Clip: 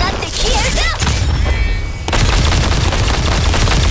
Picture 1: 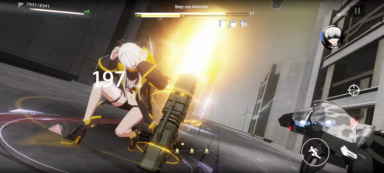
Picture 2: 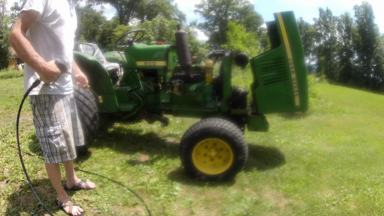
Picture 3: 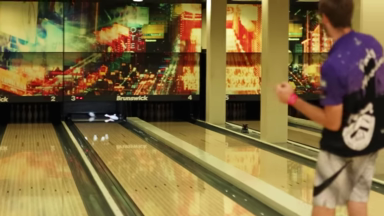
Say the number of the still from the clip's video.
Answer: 1